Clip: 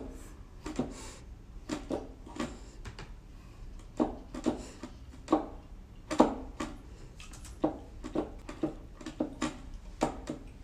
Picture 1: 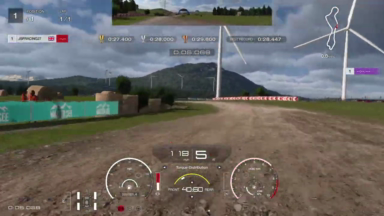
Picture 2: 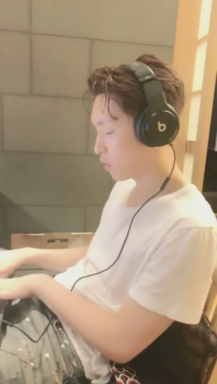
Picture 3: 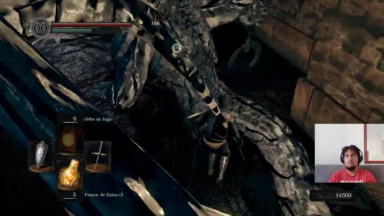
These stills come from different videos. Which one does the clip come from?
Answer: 2